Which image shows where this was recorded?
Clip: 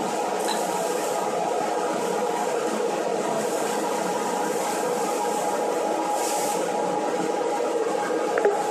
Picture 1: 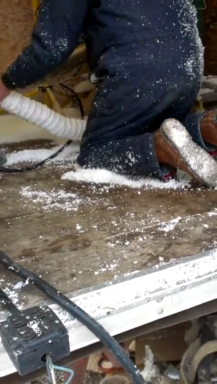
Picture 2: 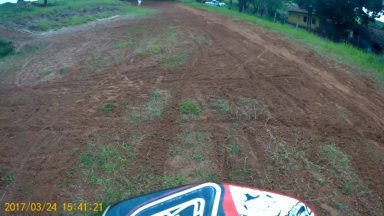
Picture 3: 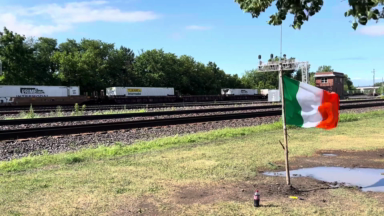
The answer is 1